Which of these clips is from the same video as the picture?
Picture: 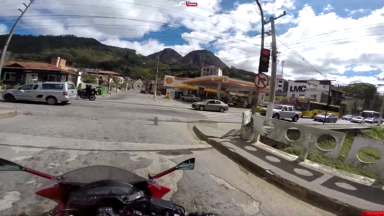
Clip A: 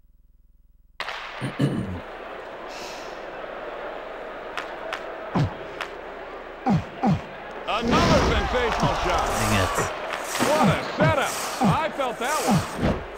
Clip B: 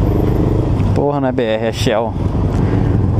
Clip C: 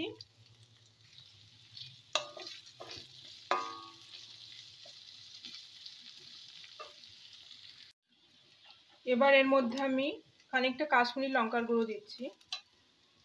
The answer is B